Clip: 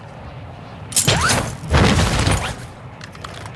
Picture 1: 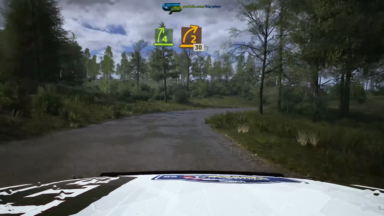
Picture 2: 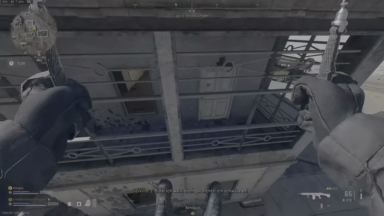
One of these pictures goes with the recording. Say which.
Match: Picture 2